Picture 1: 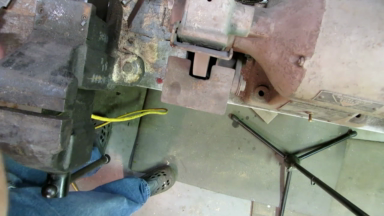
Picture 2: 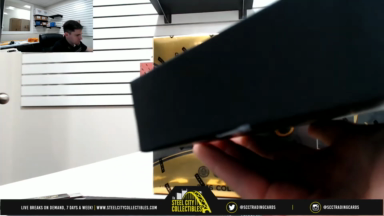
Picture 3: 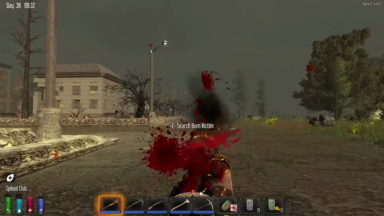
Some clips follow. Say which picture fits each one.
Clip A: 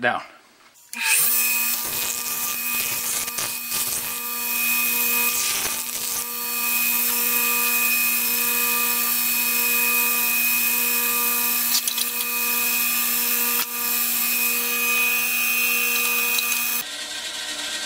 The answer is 1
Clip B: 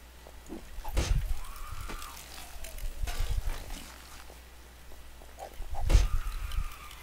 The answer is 3